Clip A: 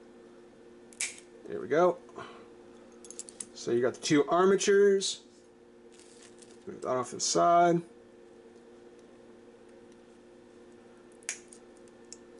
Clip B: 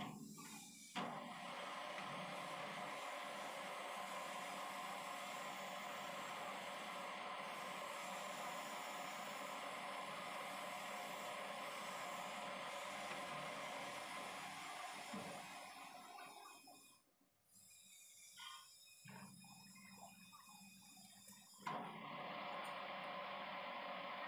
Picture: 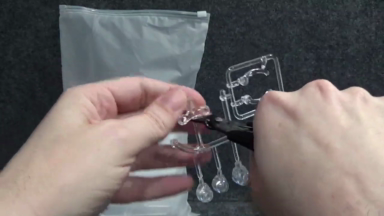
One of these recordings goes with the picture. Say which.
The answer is A